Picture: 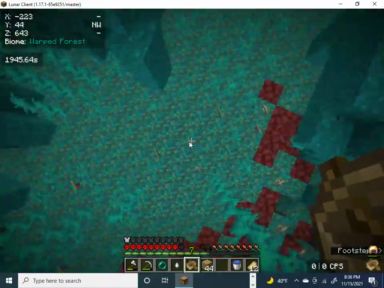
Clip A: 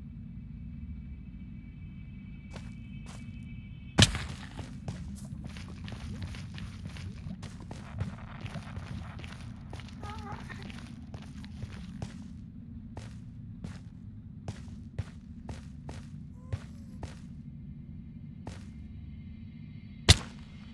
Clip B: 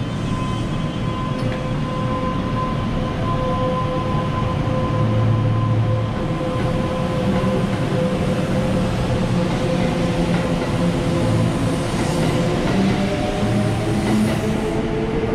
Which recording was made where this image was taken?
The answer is A